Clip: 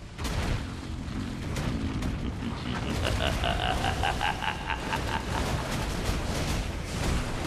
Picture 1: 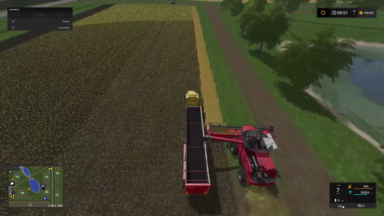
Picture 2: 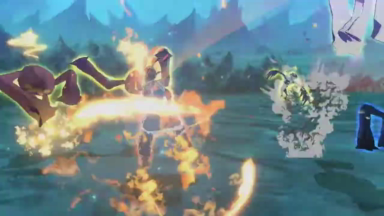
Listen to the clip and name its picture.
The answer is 2